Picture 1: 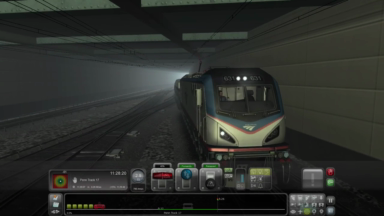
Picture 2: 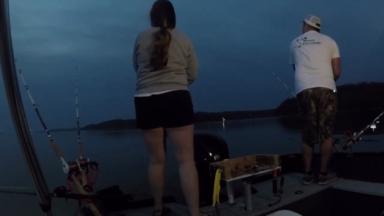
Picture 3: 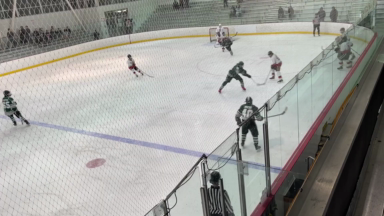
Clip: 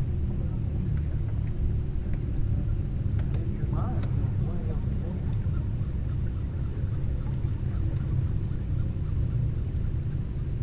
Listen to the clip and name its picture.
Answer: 2